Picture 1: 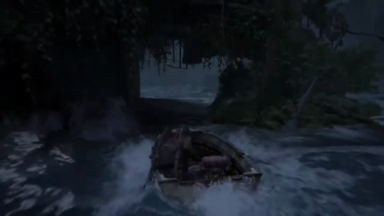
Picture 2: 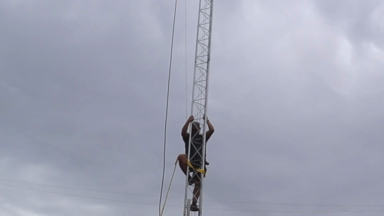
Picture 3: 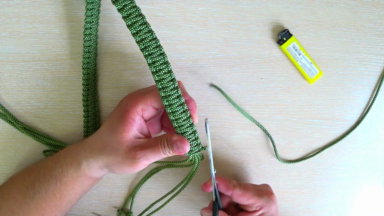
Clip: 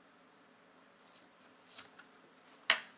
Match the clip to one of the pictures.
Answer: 3